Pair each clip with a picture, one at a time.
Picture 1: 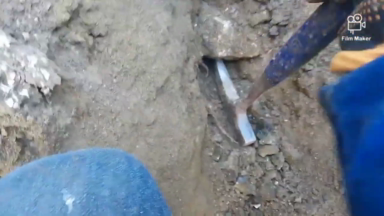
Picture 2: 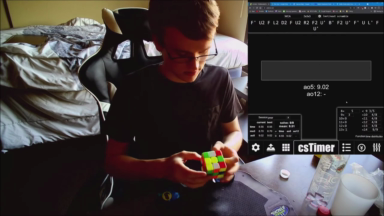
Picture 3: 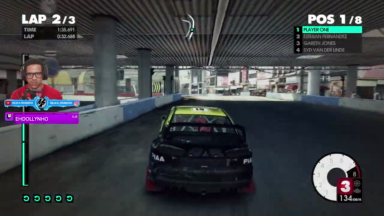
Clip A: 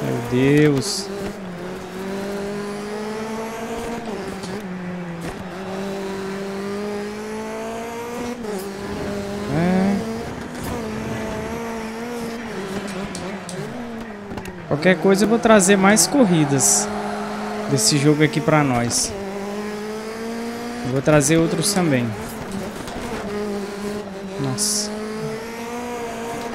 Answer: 3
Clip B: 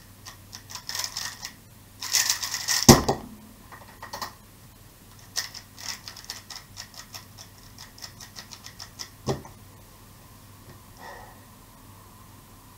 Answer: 2